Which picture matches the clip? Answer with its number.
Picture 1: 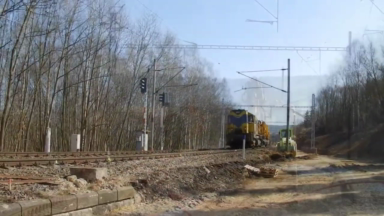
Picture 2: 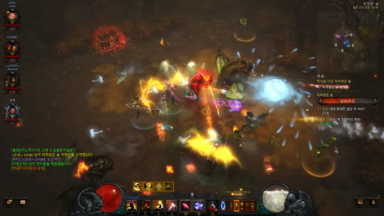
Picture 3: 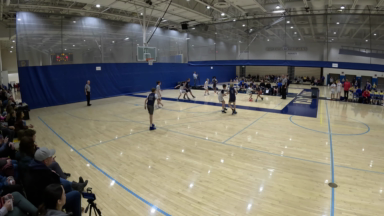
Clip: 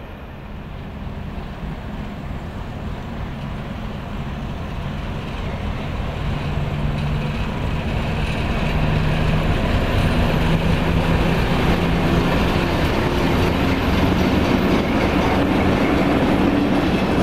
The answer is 1